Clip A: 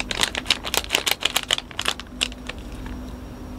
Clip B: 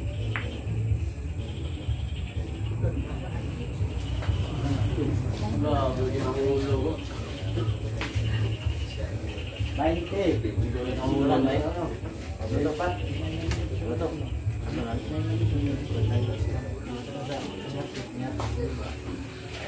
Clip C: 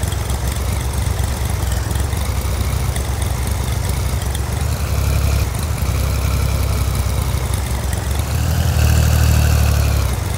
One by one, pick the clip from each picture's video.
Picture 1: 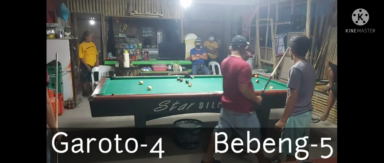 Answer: B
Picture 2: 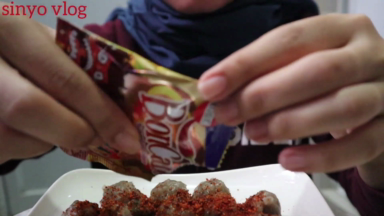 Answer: A